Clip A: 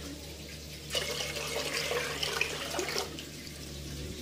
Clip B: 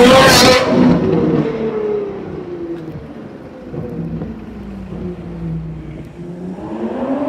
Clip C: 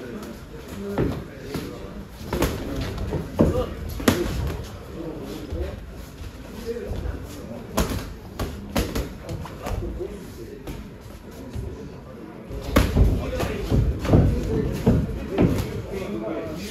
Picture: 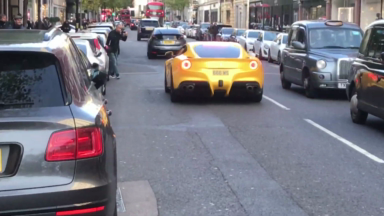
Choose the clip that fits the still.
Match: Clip B